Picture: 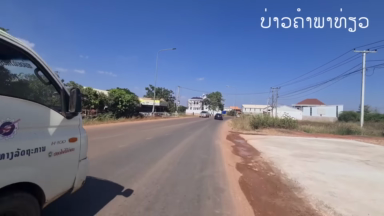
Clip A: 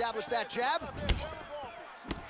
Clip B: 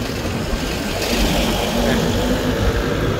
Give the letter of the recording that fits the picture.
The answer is B